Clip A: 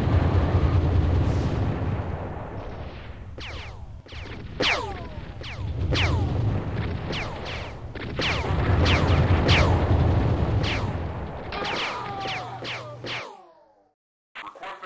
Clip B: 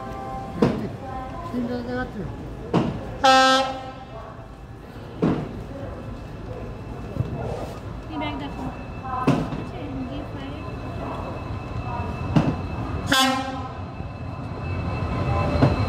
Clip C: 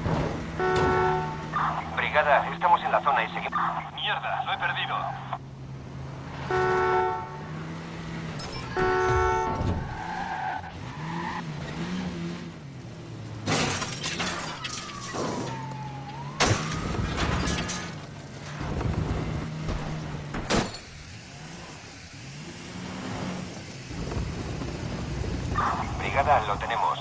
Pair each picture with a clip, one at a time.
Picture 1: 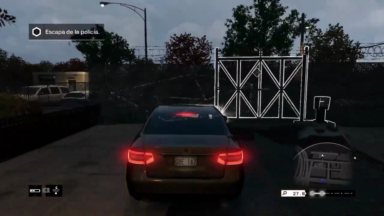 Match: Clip C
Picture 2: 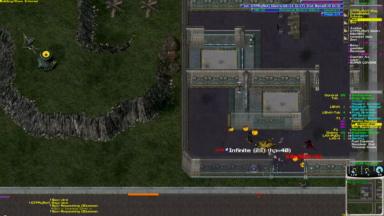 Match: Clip A